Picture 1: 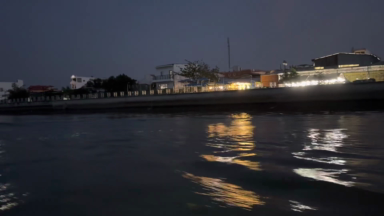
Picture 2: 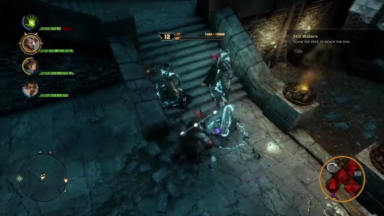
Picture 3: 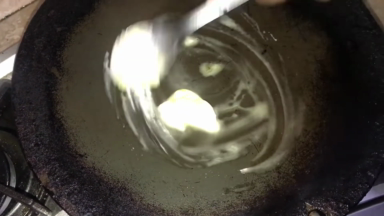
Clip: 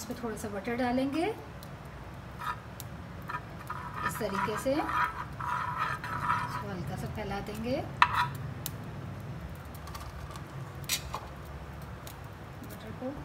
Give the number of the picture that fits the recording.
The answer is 3